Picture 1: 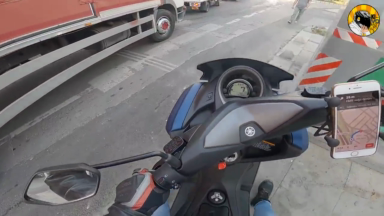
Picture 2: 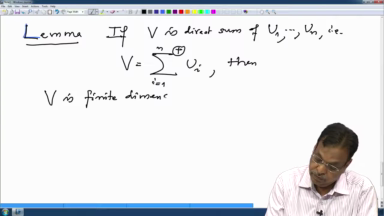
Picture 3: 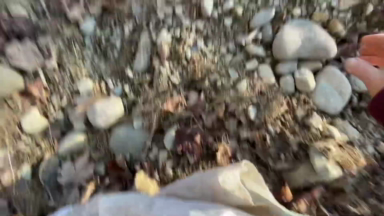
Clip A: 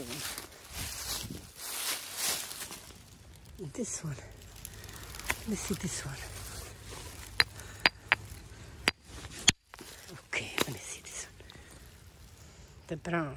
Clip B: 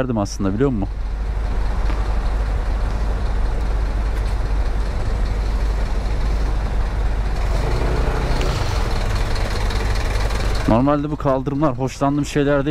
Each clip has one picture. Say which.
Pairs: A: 3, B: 1